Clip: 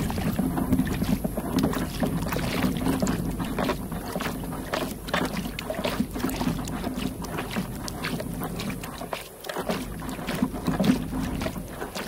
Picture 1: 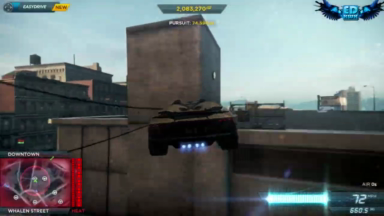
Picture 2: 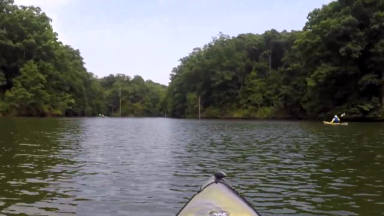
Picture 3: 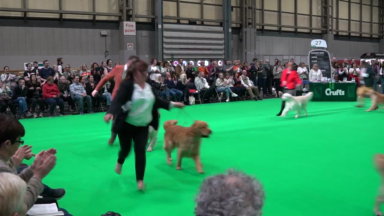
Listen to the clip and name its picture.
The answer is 2